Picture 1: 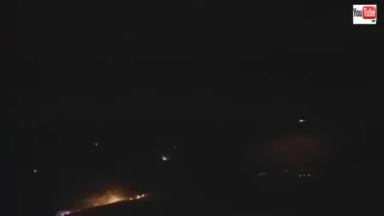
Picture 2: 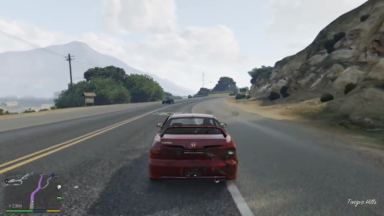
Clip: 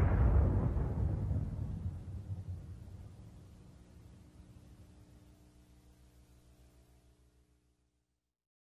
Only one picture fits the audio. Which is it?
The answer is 1